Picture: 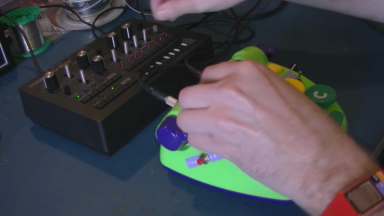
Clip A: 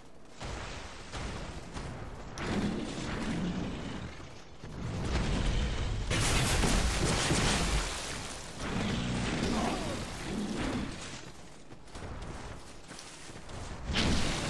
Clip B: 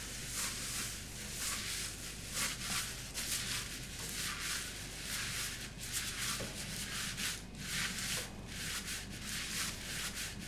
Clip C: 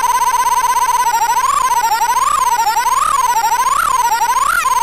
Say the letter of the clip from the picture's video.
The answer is C